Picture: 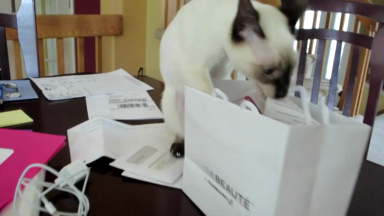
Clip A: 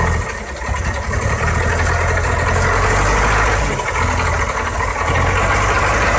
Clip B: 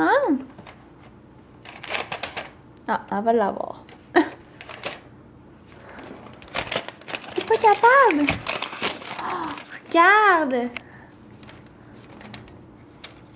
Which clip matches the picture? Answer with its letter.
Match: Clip B